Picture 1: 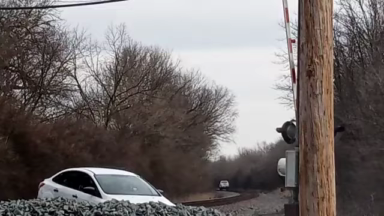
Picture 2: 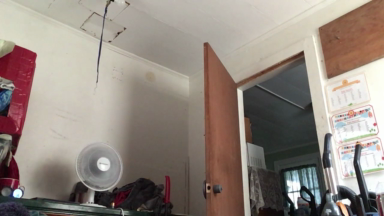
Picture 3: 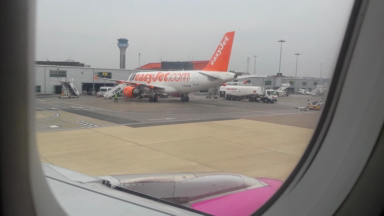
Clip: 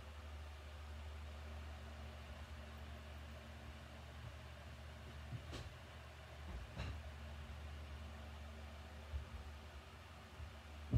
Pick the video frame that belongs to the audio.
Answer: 2